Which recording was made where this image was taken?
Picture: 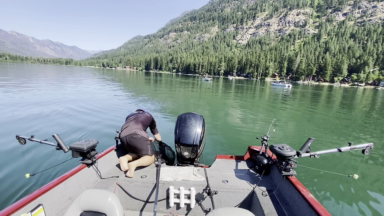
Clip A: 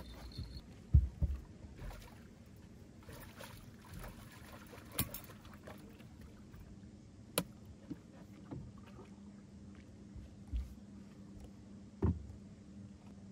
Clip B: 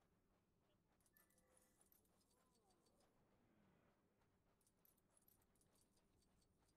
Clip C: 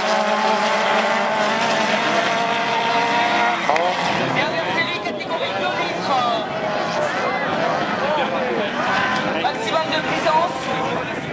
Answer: A